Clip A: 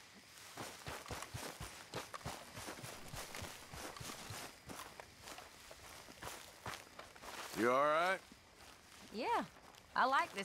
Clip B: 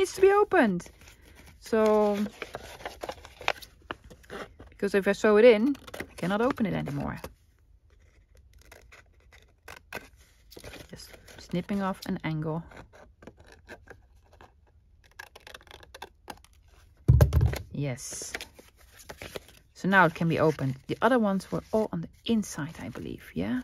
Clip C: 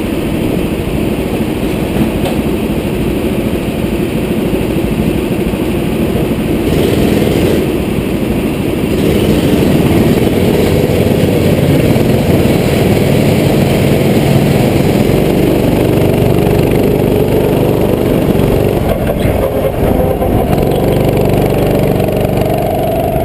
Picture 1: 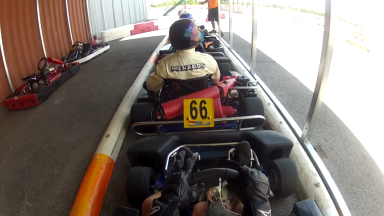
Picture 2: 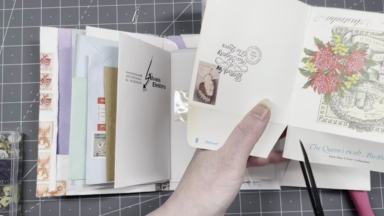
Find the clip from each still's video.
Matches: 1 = C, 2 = B